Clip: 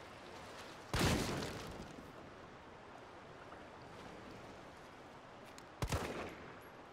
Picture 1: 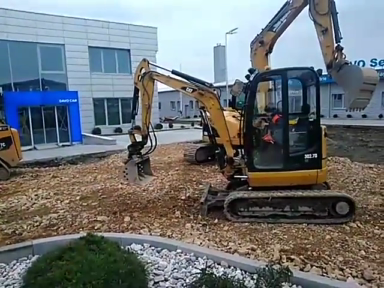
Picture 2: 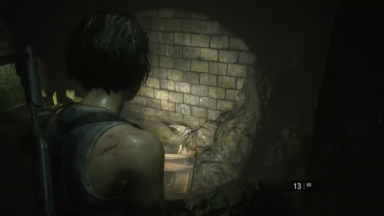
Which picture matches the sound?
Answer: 2